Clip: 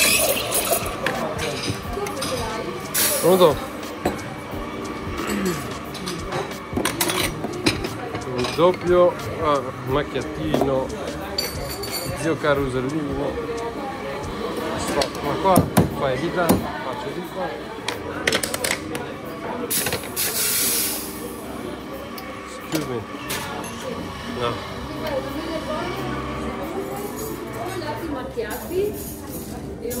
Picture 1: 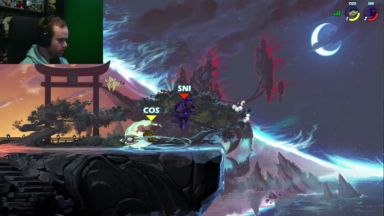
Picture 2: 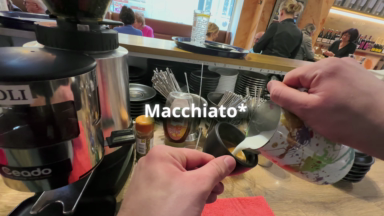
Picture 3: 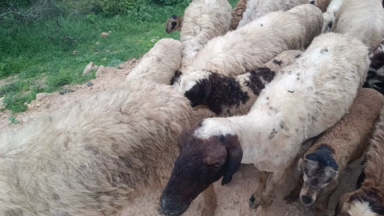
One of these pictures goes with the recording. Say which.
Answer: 2